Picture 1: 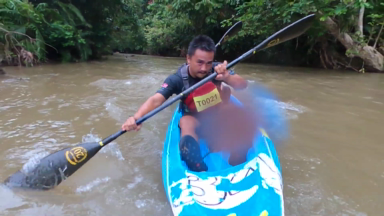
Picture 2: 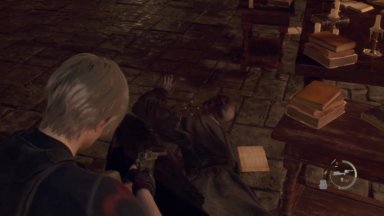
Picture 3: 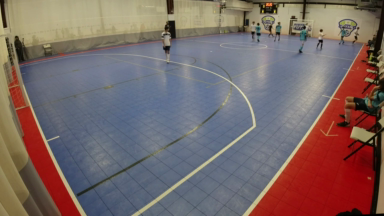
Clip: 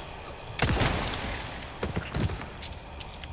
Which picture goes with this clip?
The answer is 2